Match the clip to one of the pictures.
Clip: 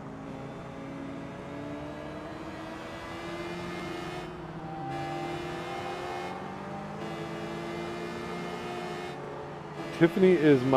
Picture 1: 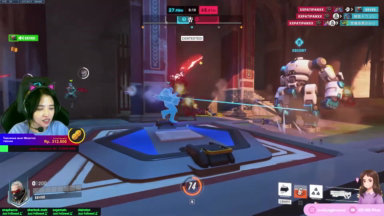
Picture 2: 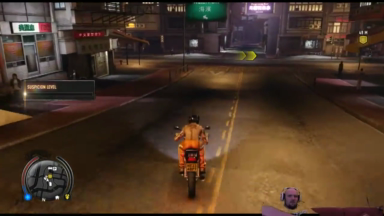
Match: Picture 2